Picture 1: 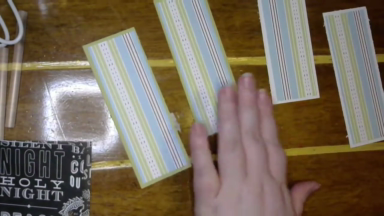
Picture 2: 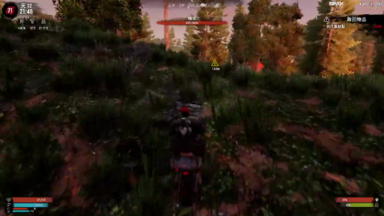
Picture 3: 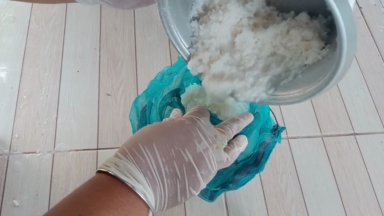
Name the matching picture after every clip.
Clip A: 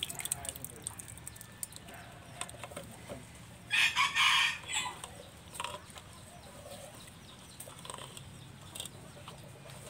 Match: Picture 3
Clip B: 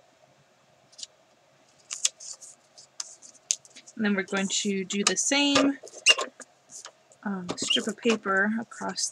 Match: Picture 1